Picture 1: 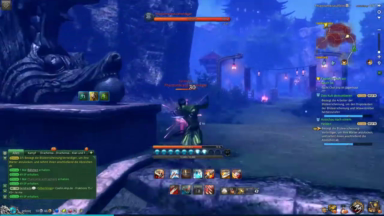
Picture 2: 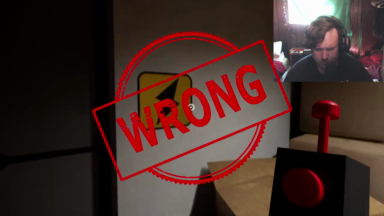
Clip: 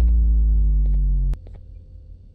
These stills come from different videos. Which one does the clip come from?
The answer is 2